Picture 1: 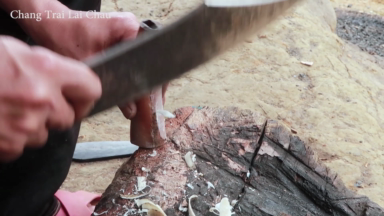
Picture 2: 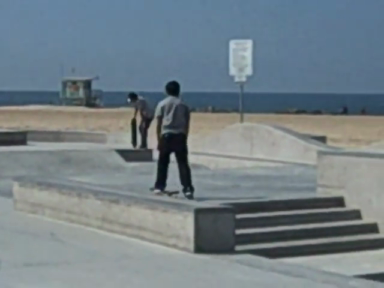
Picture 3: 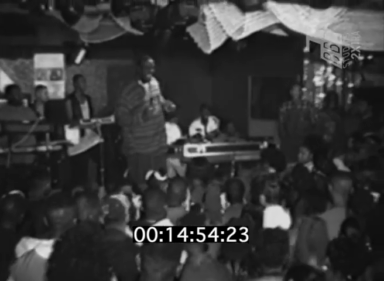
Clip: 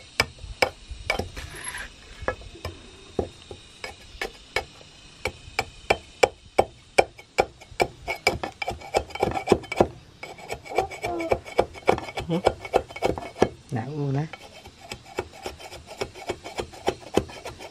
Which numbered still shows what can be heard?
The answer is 1